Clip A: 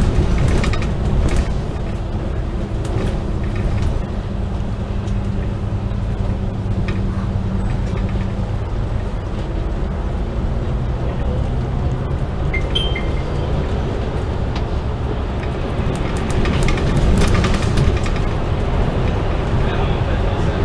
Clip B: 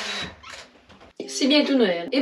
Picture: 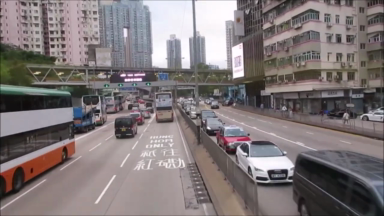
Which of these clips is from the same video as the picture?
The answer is A